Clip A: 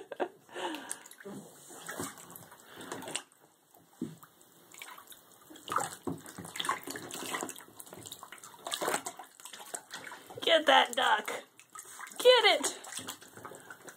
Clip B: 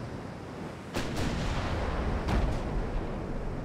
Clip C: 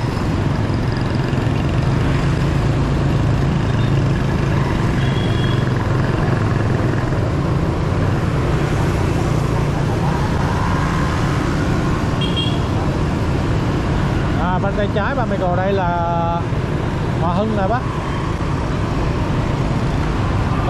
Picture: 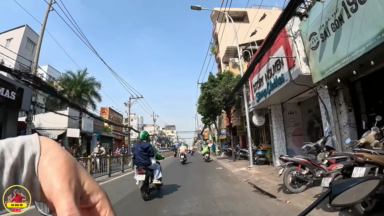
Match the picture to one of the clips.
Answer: C